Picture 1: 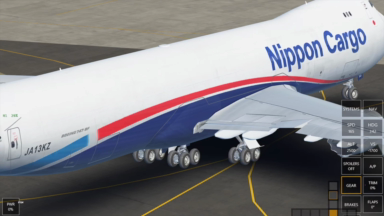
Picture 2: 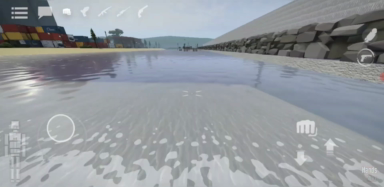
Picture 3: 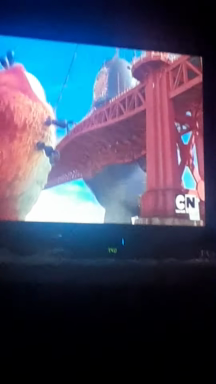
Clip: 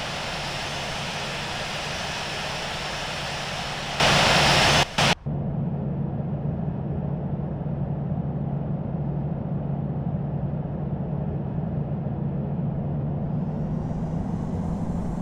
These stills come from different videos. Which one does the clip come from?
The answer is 1